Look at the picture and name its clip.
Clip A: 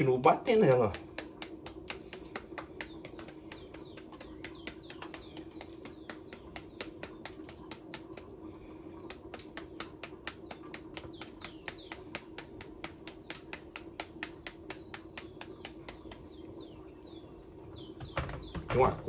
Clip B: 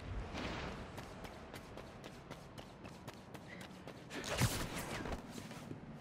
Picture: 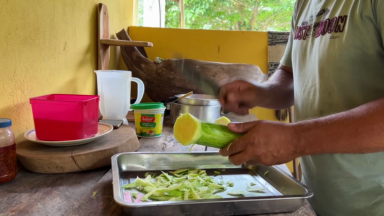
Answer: A